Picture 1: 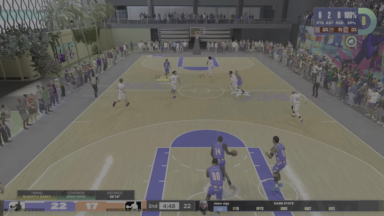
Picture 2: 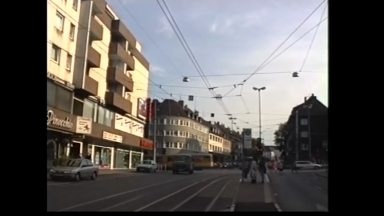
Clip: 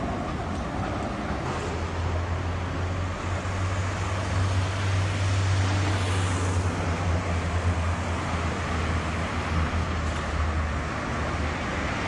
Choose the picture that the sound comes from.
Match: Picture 2